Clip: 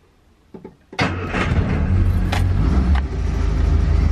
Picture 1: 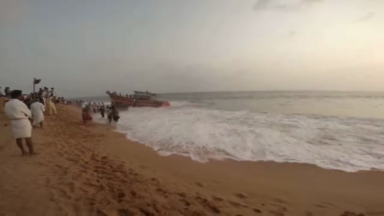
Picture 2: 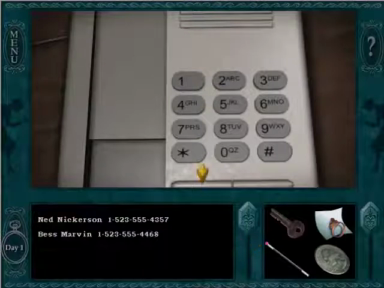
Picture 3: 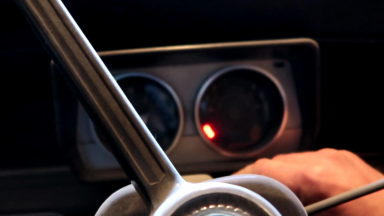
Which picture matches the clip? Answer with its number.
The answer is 3